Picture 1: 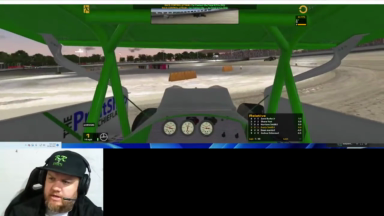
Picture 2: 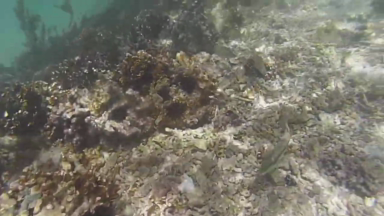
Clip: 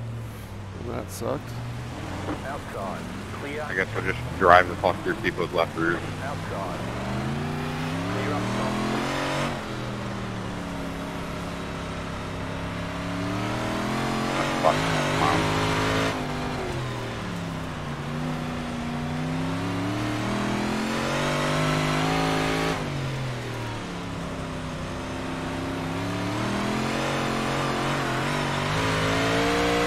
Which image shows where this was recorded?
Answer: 1